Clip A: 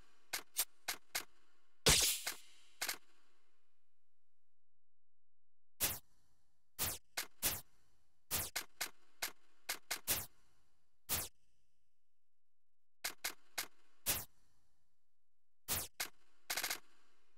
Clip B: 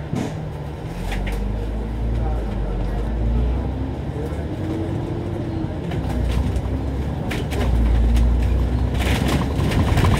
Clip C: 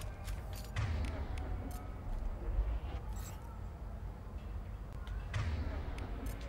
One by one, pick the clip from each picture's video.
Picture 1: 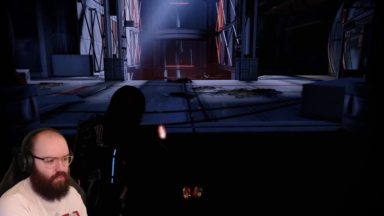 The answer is C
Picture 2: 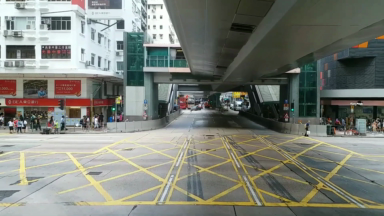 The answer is B